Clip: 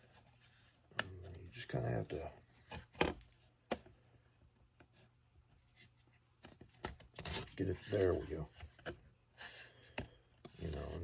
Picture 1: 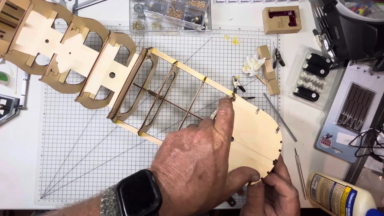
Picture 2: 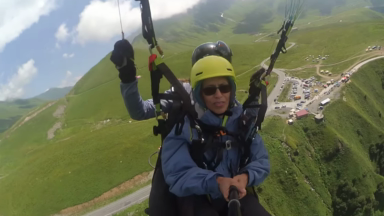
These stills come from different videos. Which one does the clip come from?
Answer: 1